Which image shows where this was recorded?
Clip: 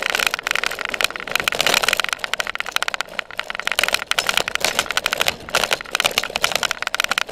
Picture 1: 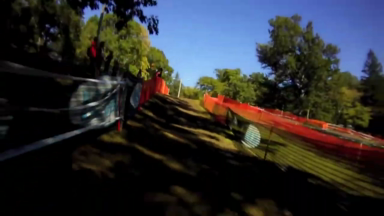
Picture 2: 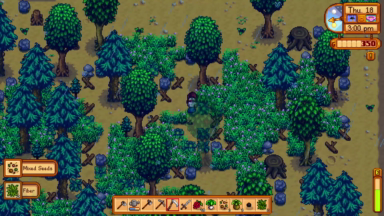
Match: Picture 1